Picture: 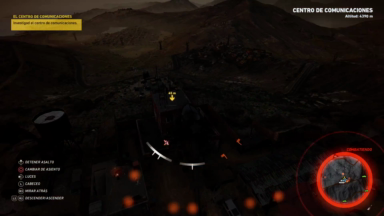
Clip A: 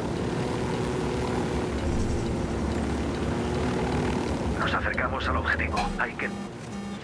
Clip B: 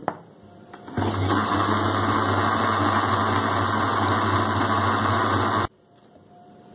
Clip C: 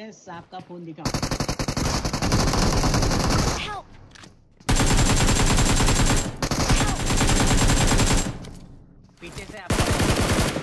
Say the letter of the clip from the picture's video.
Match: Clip A